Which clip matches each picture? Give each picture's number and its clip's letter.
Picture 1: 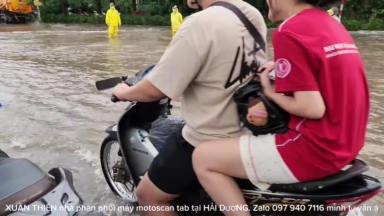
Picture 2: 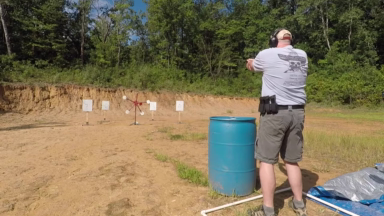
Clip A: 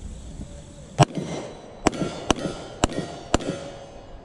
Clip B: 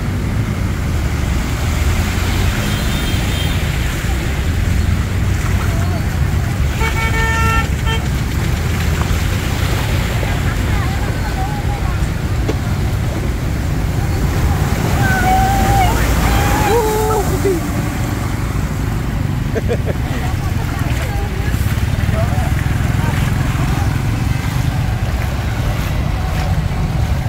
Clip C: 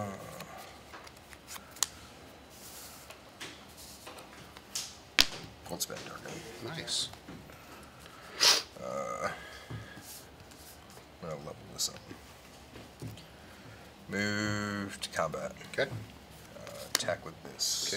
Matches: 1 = B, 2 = A